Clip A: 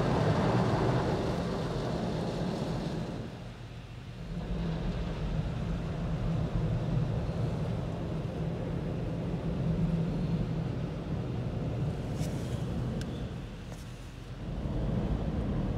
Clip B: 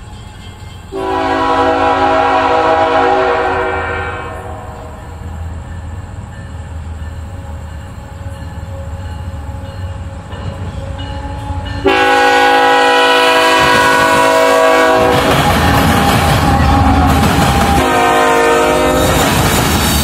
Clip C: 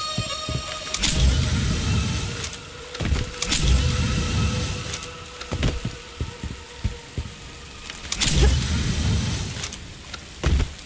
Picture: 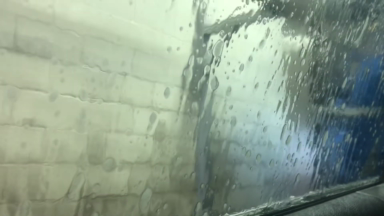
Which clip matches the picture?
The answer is A